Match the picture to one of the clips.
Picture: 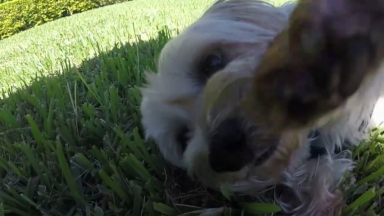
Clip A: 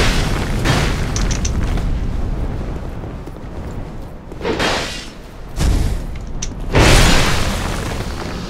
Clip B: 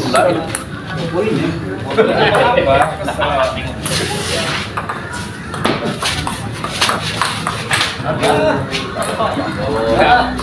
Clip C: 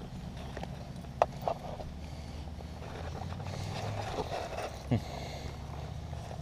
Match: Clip C